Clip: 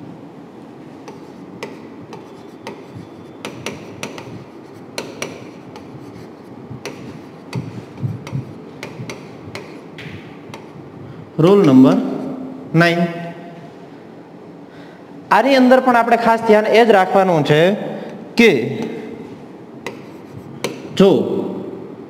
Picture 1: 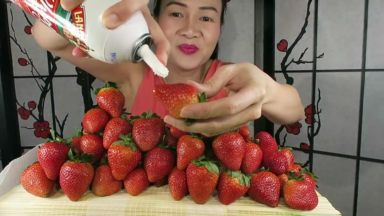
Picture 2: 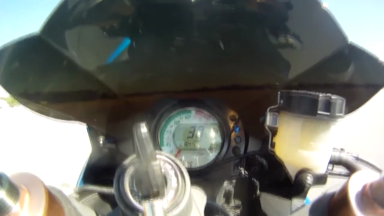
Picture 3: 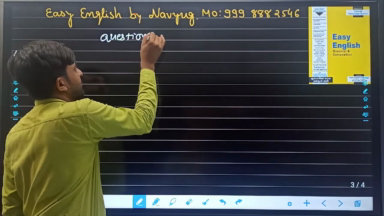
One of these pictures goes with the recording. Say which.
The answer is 3